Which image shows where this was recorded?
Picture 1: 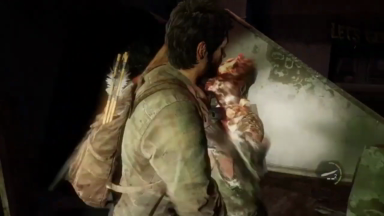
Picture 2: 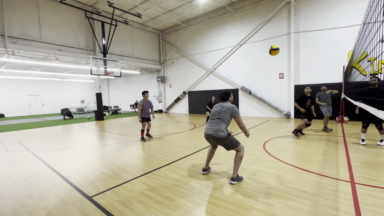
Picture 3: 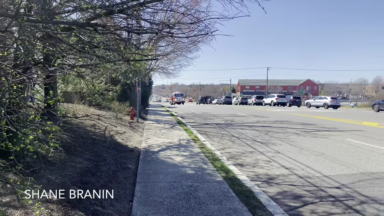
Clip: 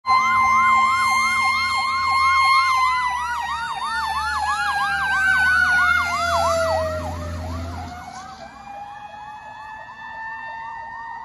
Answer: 3